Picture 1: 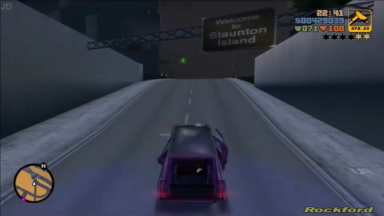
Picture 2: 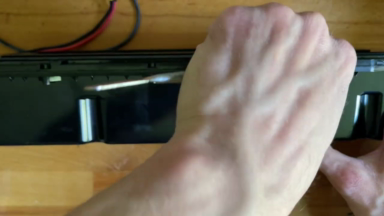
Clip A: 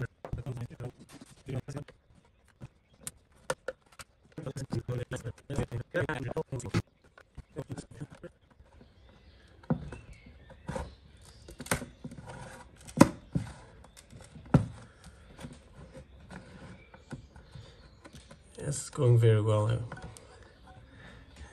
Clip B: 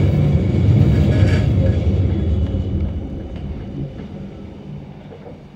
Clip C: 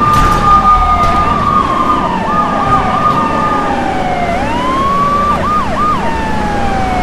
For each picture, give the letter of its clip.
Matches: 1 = C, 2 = A